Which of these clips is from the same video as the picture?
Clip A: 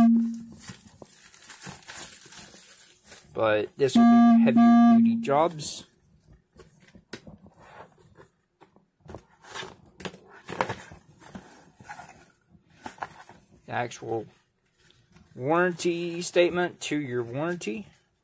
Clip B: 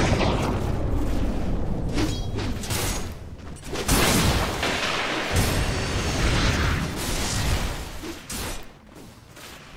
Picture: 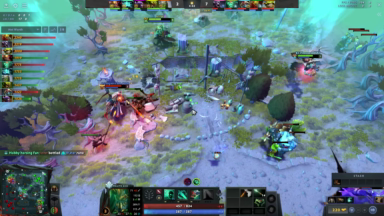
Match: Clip B